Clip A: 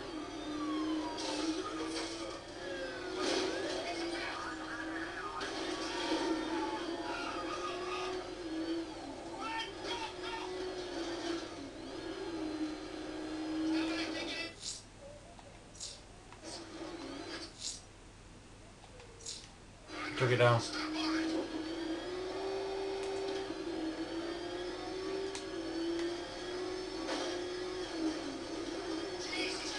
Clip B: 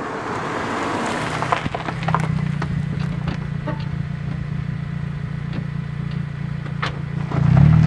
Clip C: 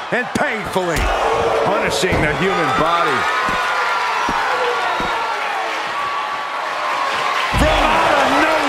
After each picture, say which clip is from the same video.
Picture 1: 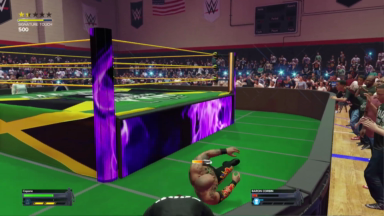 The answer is C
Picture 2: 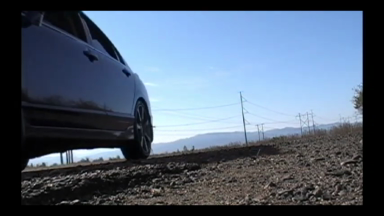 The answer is B